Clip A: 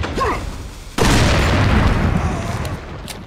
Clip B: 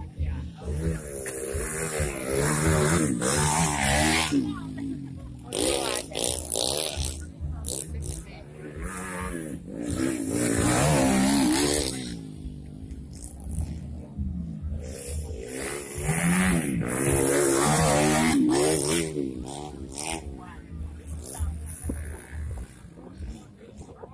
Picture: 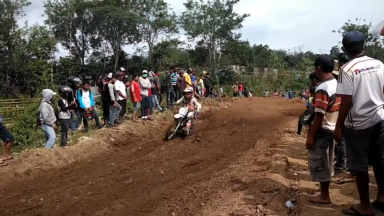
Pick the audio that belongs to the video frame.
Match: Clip B